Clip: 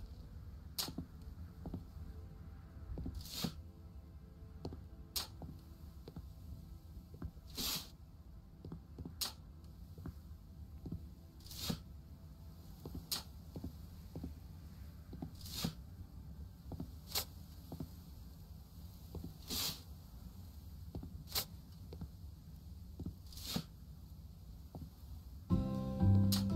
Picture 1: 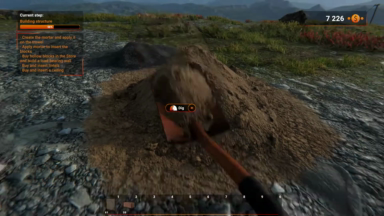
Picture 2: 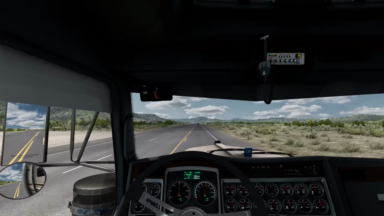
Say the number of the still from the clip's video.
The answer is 1